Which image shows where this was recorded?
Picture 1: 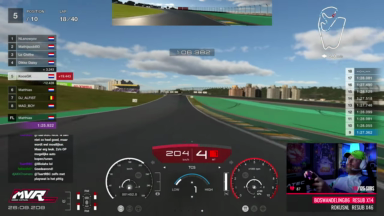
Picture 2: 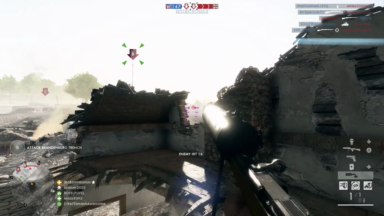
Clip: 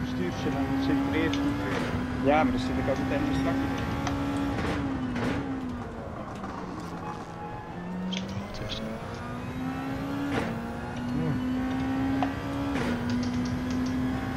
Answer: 1